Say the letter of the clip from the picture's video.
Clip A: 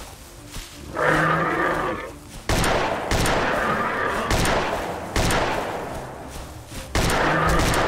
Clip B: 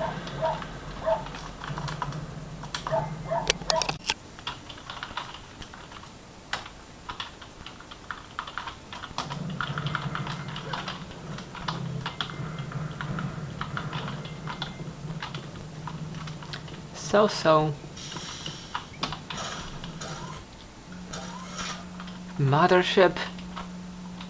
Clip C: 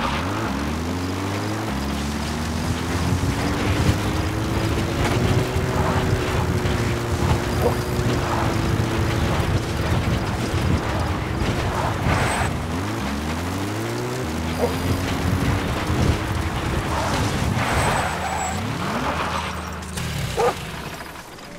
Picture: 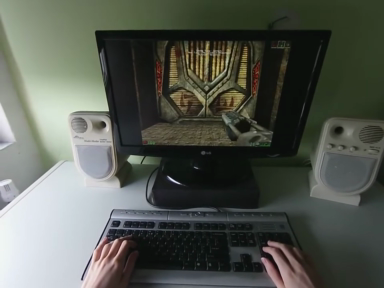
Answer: B